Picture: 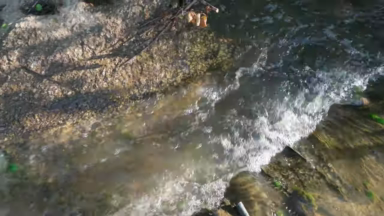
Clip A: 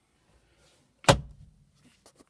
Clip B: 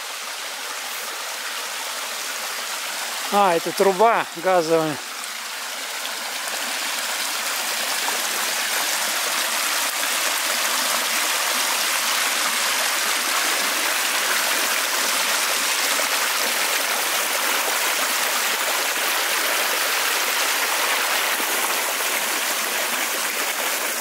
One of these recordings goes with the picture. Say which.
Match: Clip B